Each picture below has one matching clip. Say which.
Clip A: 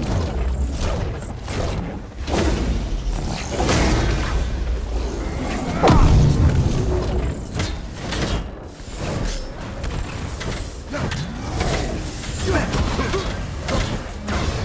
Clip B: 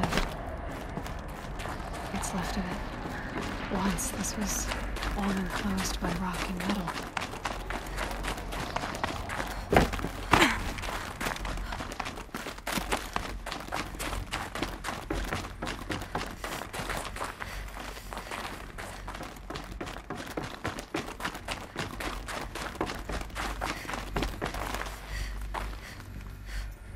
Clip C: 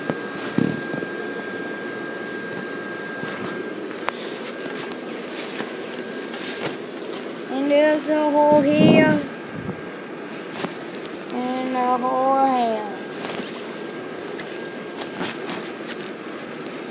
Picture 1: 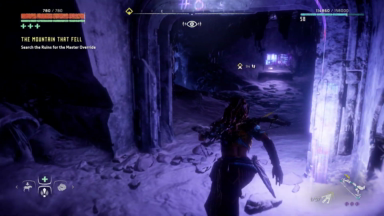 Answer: B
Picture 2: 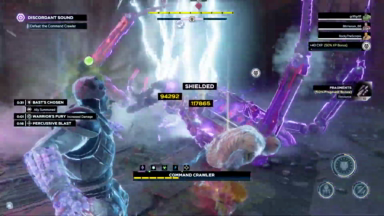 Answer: A